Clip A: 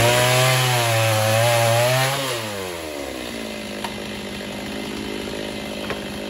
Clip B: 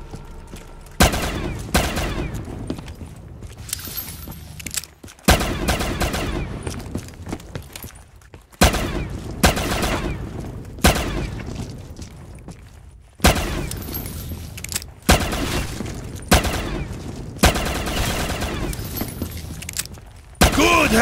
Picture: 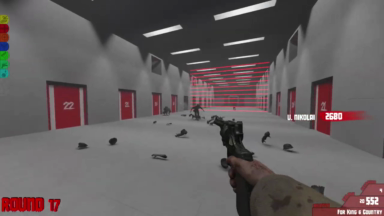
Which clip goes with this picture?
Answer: B